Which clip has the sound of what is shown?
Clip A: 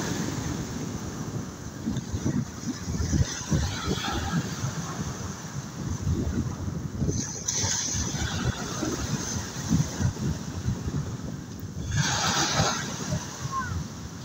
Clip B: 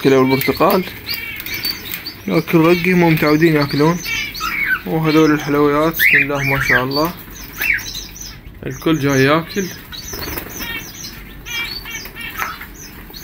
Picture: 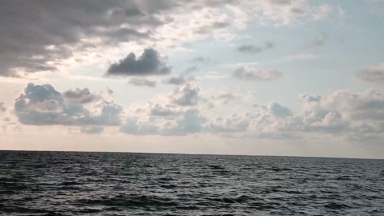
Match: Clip A